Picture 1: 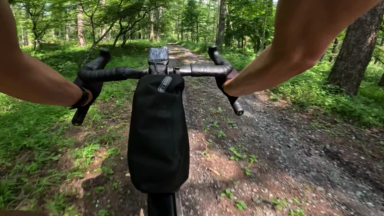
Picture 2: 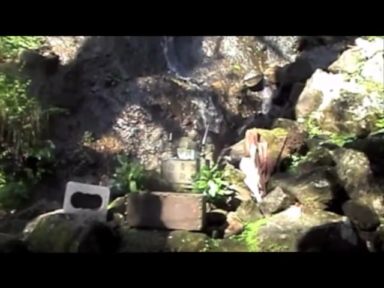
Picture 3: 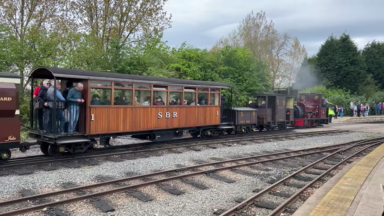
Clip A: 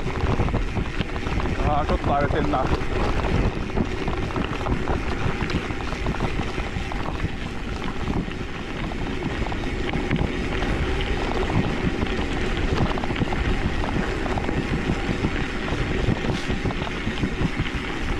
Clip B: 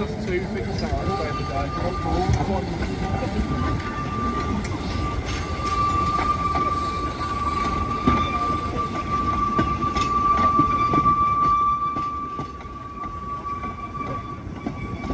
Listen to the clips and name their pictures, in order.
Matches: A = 1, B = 3